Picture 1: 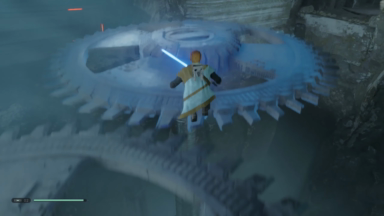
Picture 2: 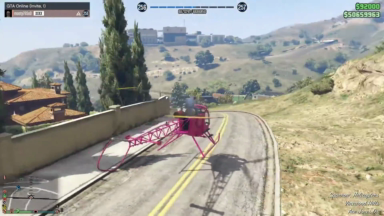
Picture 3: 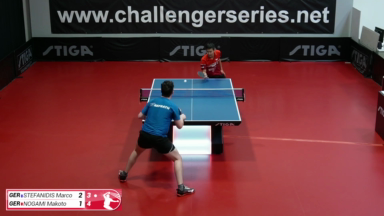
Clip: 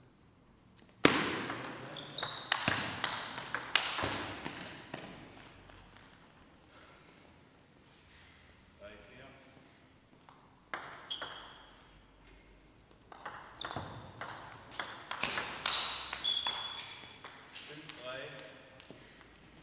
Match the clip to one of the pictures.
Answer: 3